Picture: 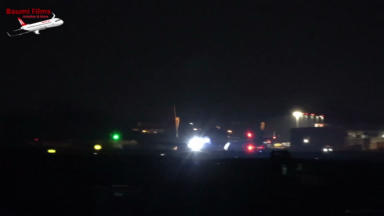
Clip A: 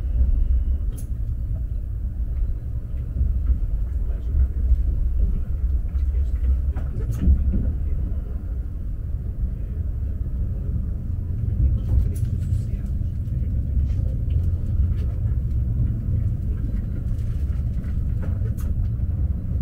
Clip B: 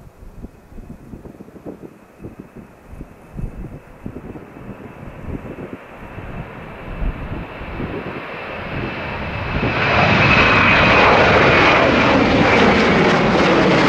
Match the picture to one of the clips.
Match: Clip B